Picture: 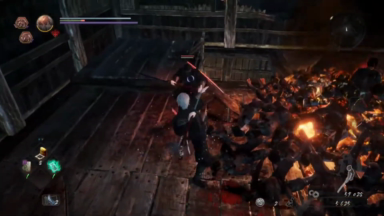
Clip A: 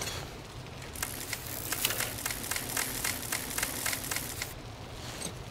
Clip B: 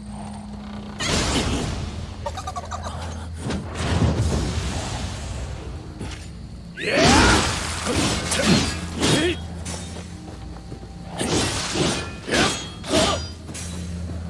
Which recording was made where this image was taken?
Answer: B